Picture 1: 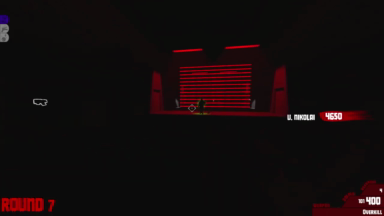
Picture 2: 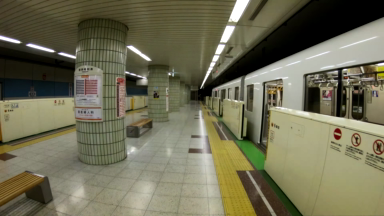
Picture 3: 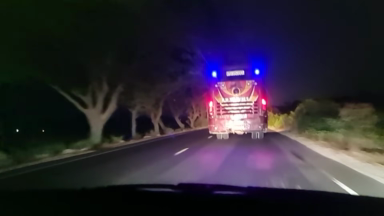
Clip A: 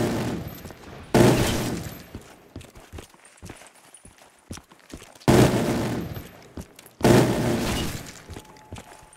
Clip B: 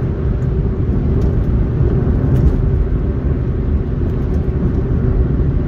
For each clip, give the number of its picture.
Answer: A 1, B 3